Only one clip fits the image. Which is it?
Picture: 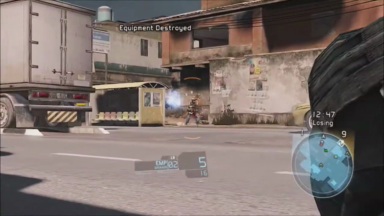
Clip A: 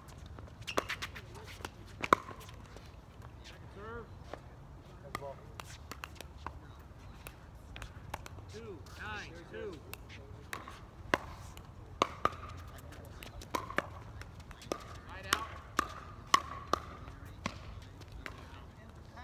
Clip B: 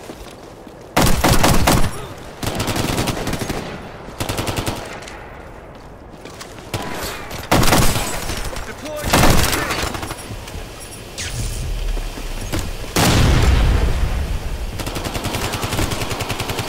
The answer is B